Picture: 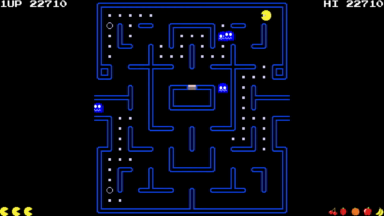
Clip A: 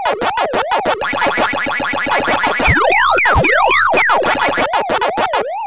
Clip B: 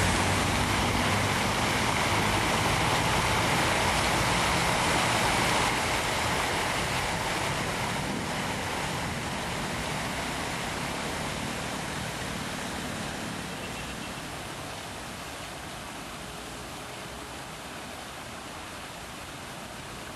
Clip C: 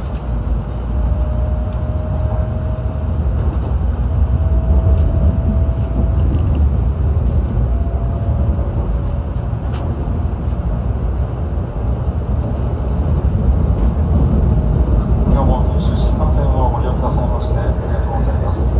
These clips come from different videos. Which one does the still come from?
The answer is A